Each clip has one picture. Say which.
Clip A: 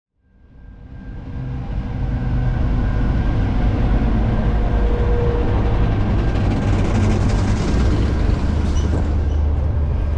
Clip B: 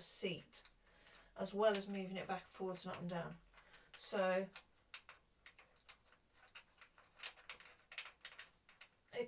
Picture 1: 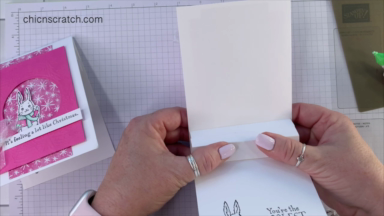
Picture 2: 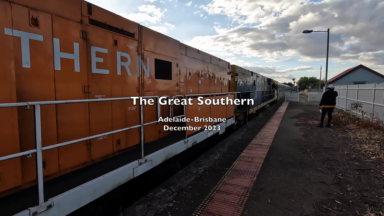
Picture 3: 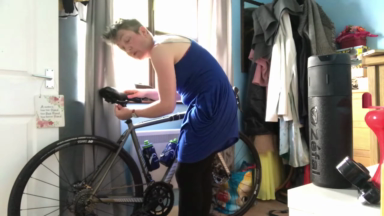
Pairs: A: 2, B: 3